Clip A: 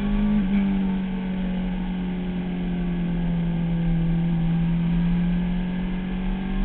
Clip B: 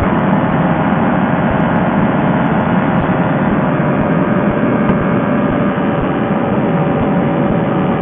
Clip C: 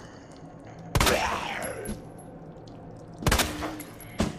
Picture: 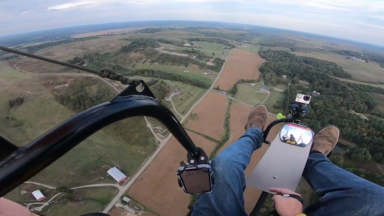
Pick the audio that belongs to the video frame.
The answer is B